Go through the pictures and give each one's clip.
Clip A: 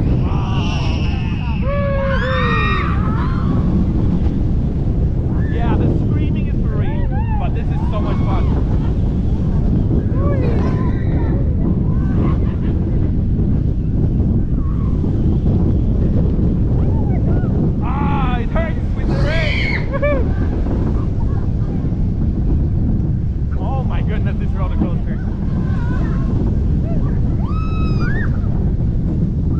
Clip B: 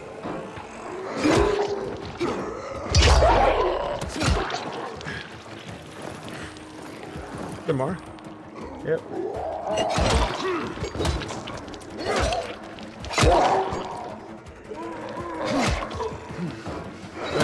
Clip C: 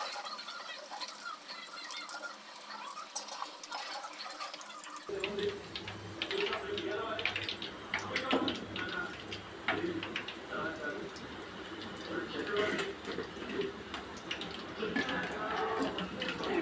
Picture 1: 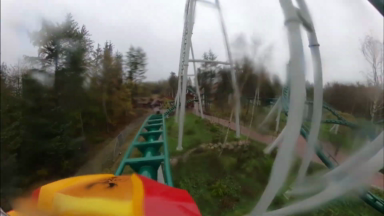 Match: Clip A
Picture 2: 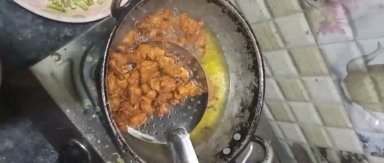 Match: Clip C